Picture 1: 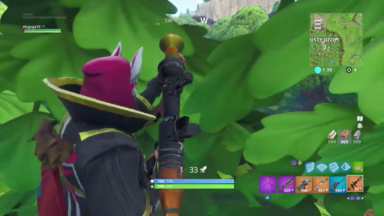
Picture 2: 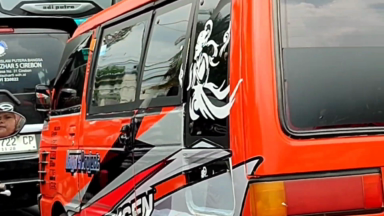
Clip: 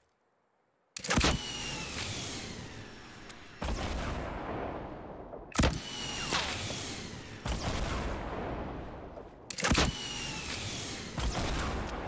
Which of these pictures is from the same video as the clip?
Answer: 1